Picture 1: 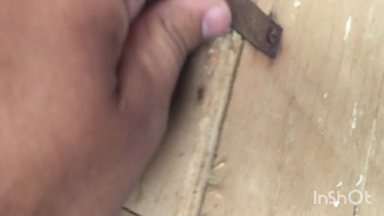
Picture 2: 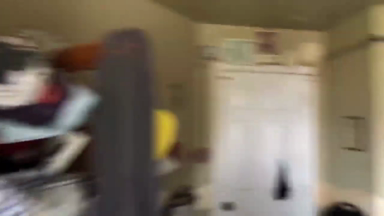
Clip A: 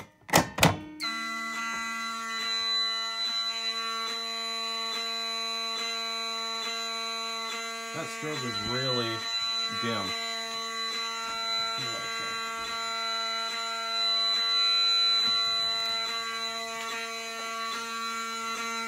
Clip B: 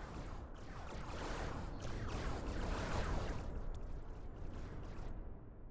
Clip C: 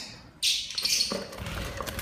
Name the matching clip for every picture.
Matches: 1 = C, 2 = A